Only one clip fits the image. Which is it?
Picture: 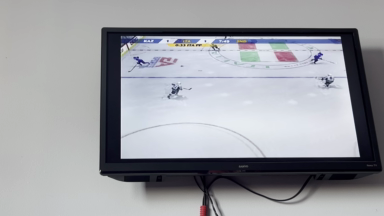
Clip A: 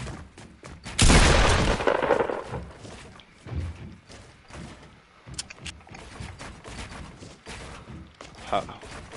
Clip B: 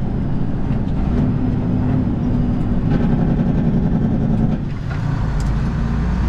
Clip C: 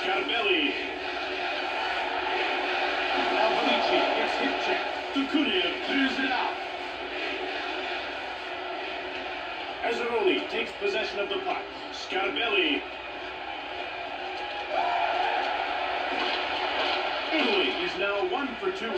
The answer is C